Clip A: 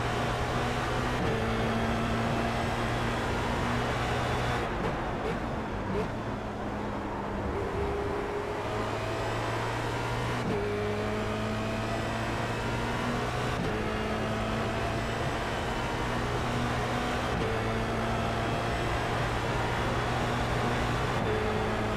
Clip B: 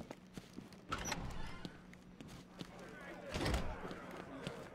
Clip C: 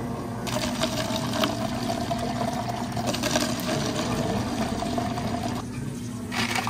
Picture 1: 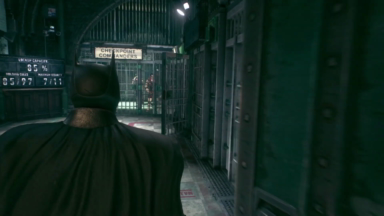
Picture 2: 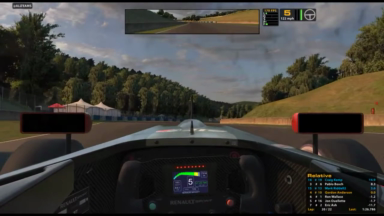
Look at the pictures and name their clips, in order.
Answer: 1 B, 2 A